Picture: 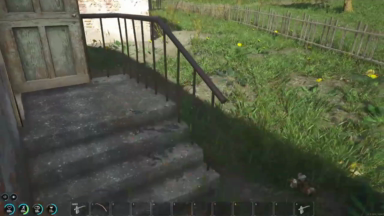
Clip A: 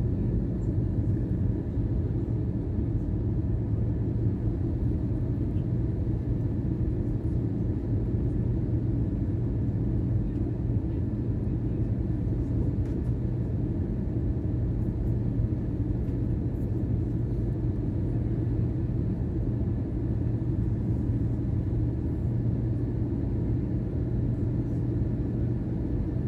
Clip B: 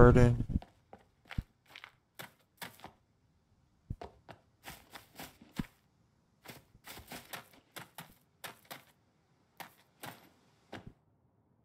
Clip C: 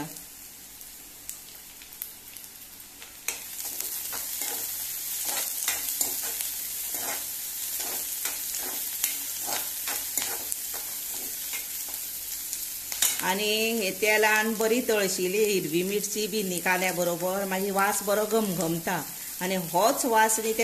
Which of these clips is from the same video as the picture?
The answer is B